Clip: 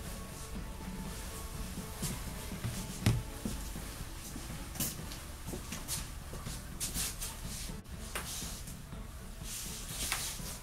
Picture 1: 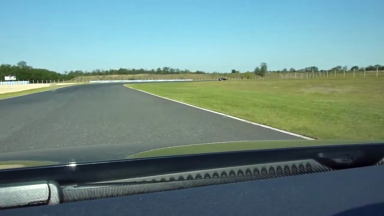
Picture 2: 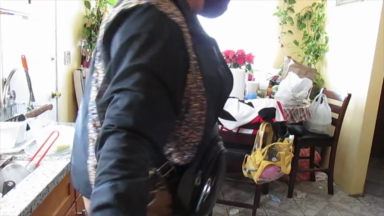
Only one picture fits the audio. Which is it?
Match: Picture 2